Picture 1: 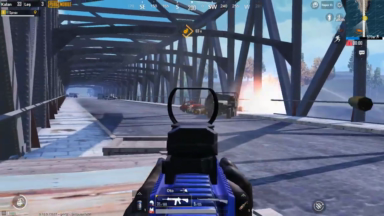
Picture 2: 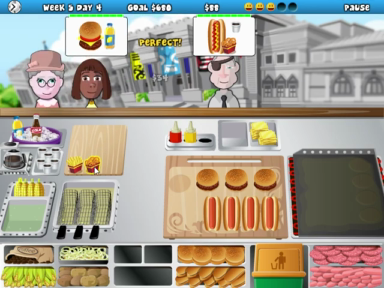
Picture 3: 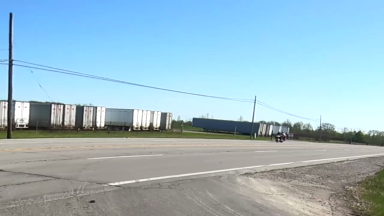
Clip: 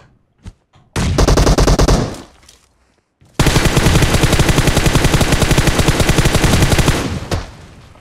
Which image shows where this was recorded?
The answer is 1